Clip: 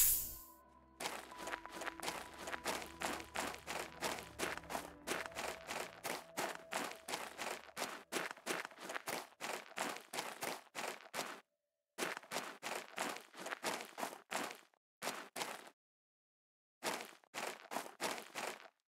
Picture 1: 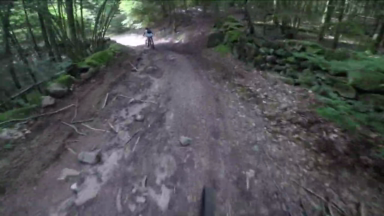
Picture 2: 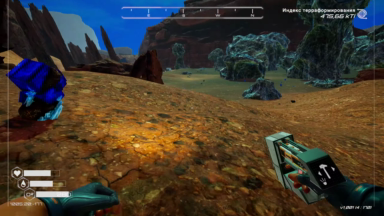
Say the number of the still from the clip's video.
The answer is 2